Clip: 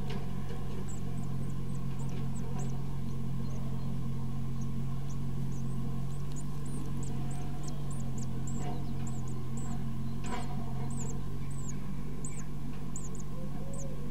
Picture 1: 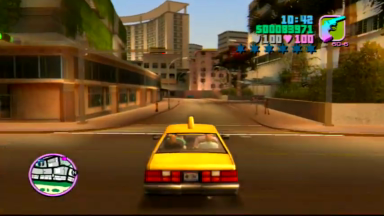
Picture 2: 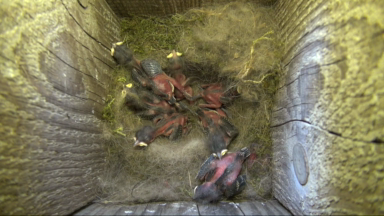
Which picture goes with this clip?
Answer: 2